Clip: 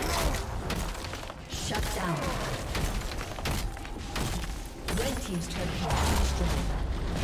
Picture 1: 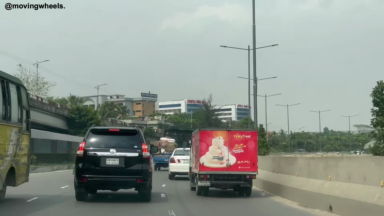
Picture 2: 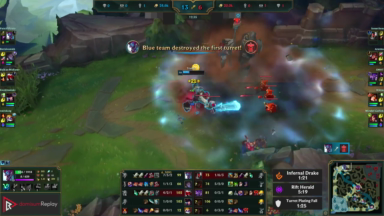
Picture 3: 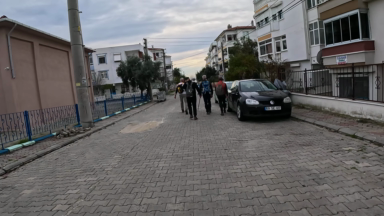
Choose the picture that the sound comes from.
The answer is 2